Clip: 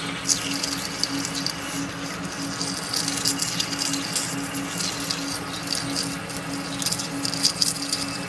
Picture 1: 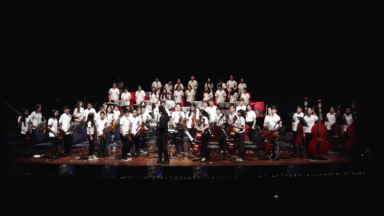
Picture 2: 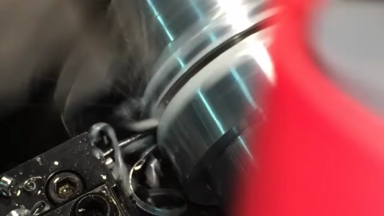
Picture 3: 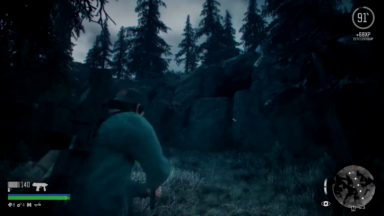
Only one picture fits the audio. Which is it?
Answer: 2